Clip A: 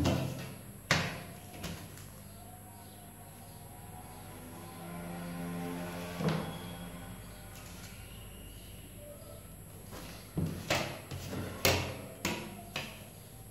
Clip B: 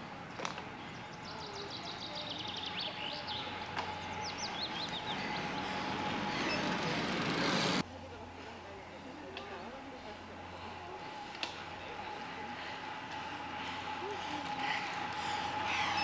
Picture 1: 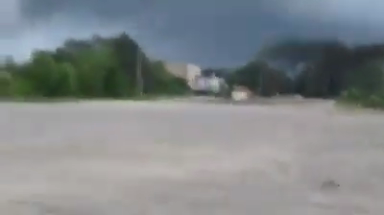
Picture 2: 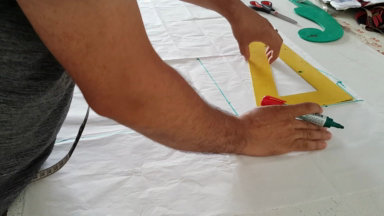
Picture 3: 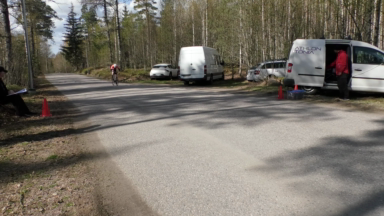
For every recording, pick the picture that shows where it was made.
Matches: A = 2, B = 3